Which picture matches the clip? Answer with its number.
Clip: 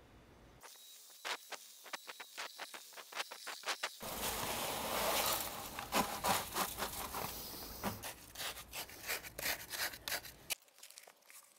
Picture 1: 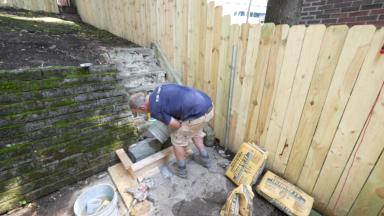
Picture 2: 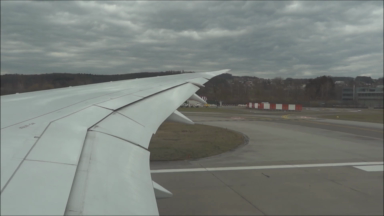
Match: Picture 1